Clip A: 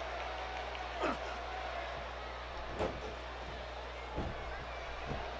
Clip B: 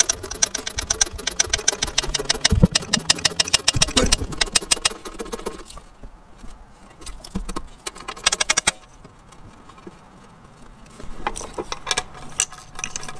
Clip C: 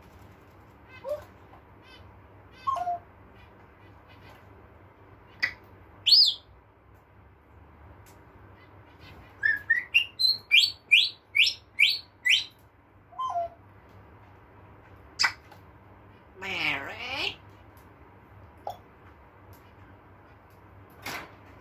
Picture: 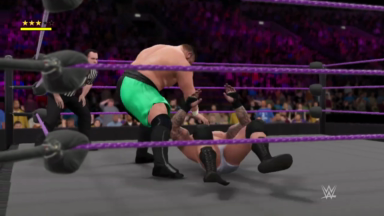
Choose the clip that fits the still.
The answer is A